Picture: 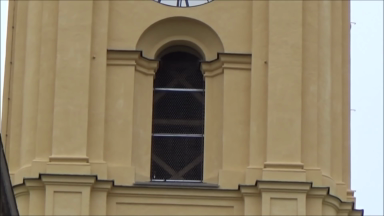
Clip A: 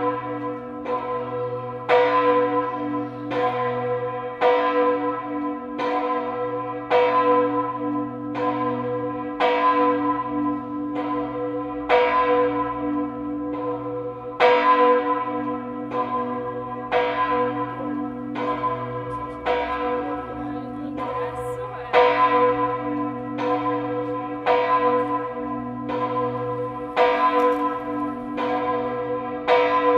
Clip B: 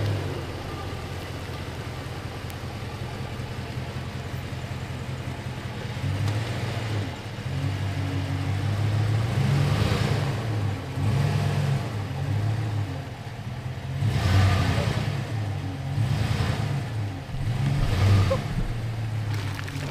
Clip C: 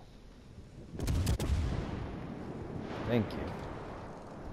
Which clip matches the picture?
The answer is A